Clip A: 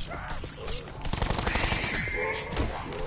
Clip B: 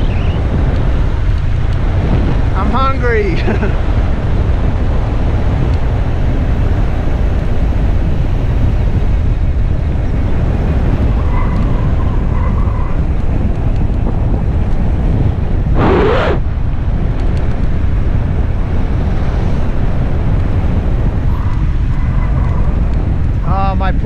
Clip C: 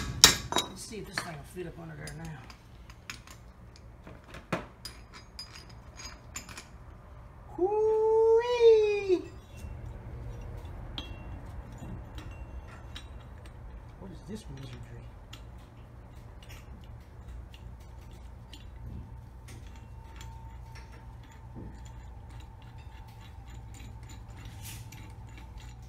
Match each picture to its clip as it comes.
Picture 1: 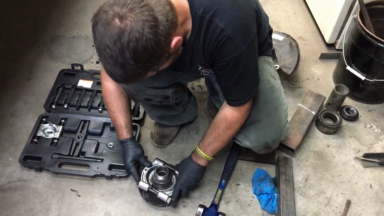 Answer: C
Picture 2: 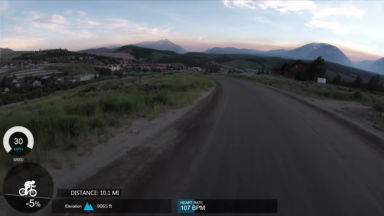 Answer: B